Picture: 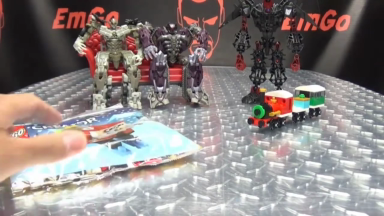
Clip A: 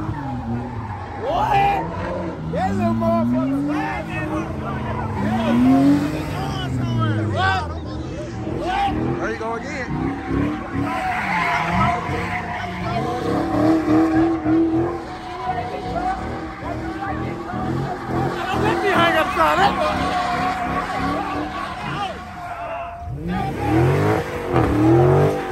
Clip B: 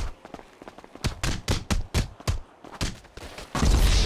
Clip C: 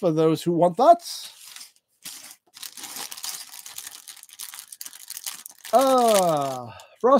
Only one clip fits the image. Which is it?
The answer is C